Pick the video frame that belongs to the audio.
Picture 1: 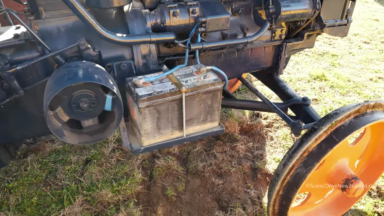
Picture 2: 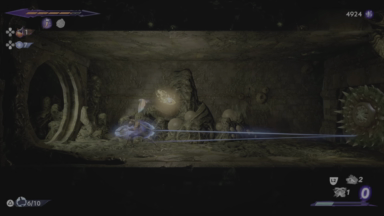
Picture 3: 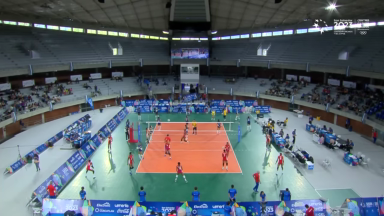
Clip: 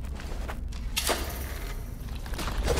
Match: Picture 2